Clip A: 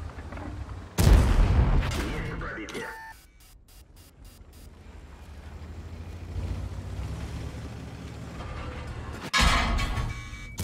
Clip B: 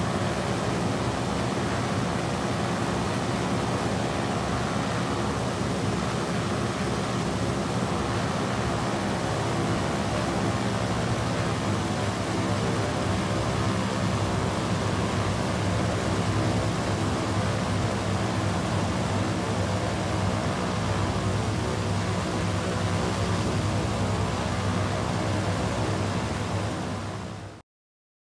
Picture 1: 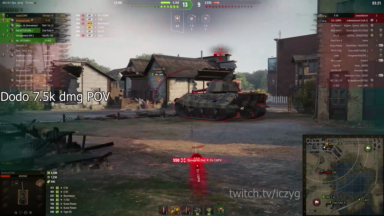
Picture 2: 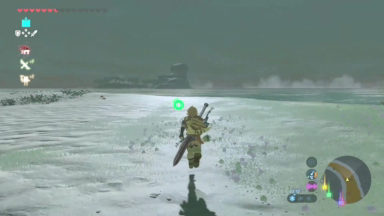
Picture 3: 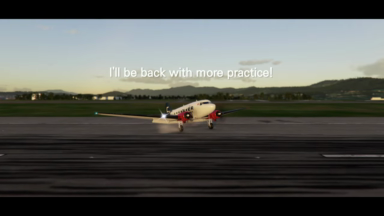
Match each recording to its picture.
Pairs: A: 1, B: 3